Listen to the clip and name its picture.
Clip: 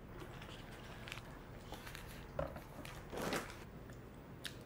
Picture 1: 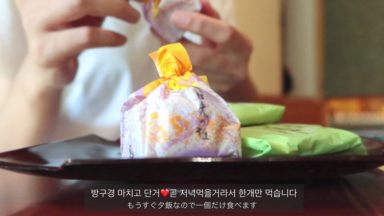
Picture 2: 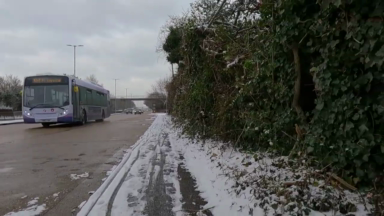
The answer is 1